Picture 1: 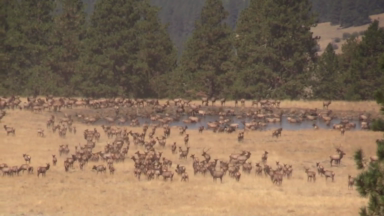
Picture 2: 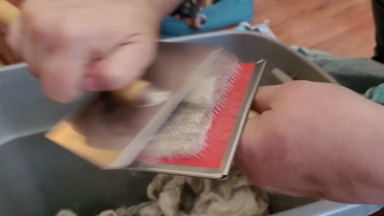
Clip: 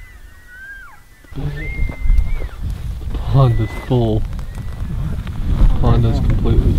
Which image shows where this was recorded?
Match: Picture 1